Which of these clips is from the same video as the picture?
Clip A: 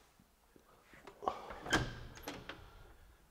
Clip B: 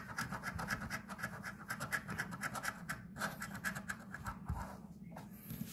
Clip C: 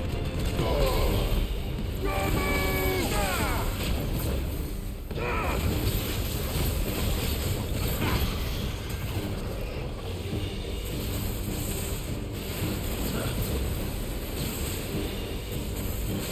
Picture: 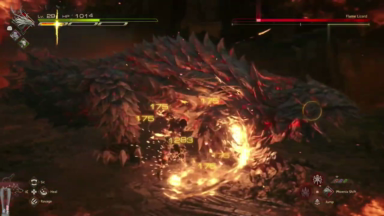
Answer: C